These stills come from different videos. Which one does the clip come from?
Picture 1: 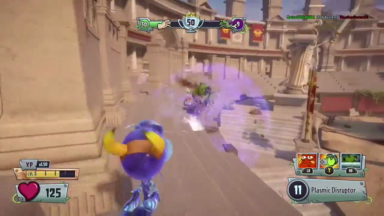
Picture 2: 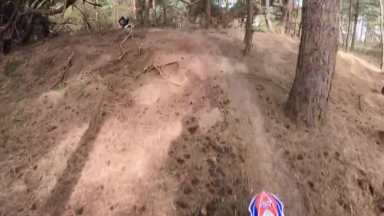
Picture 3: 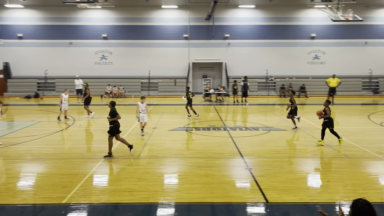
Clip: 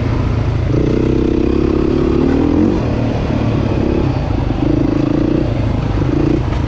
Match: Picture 2